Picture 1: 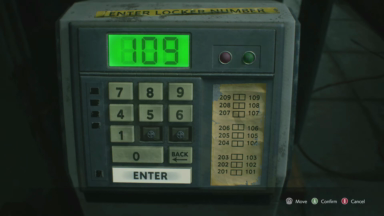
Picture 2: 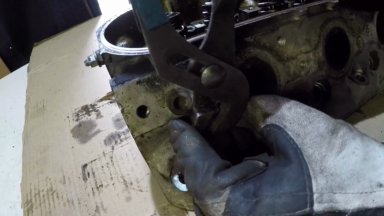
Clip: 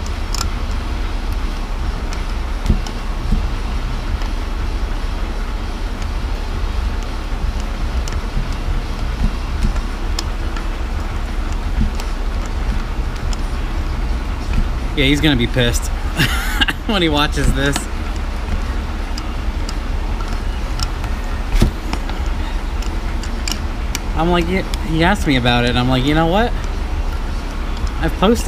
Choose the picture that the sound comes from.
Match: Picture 2